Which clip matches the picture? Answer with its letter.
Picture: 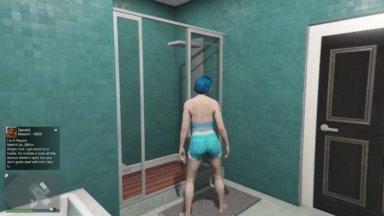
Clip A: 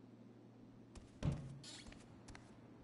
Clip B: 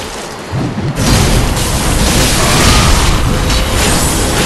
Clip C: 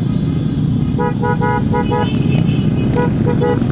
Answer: A